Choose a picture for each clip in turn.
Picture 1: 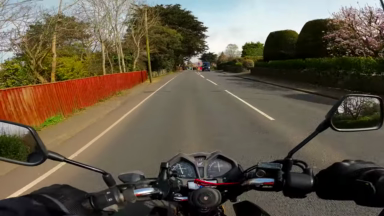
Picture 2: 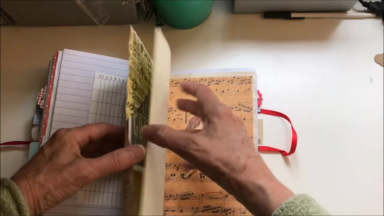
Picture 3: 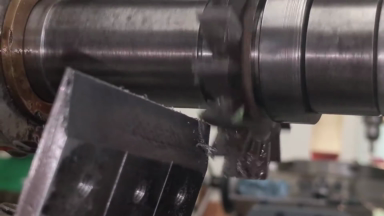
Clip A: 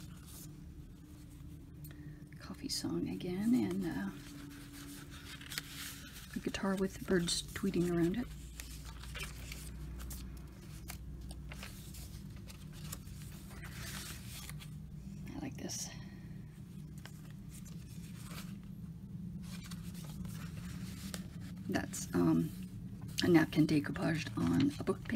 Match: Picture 2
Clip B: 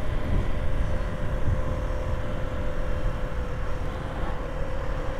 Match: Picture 1